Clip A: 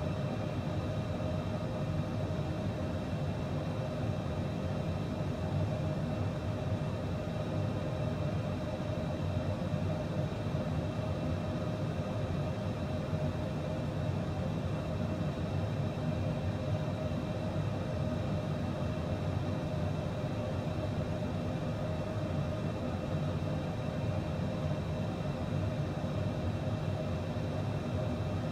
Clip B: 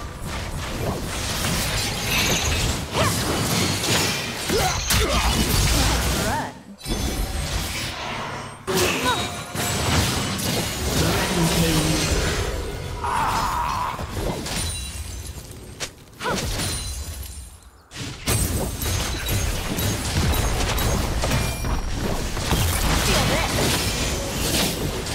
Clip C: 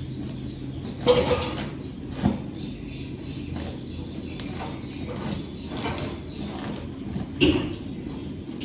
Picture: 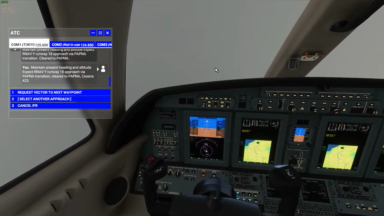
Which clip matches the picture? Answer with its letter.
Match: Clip A